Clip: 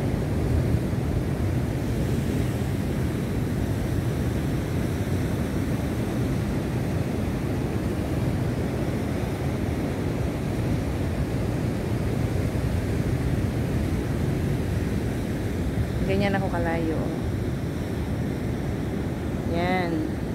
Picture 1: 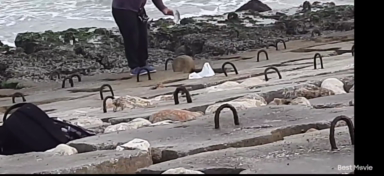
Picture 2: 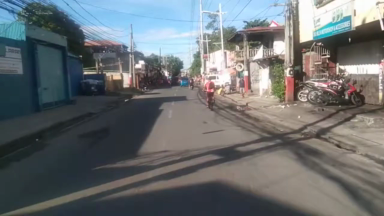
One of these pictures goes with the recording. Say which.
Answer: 1